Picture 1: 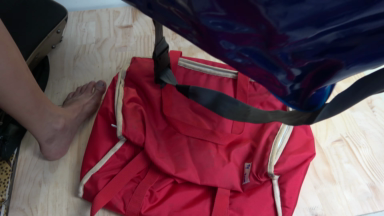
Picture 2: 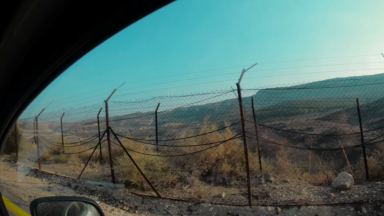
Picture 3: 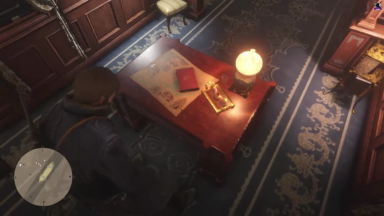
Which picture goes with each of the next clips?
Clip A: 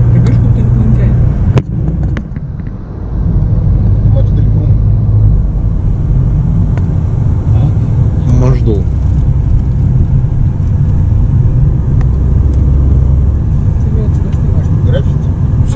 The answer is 2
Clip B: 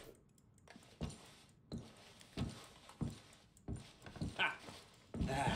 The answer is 3